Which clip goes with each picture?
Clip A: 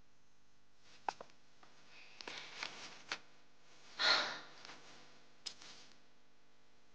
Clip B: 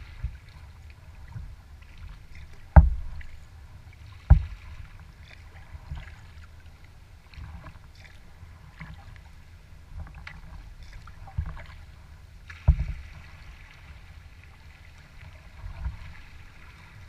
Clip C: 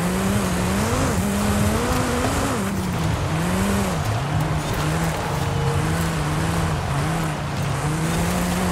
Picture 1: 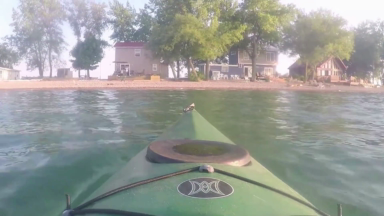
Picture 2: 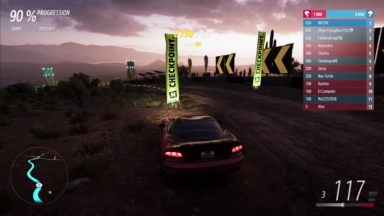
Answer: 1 B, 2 C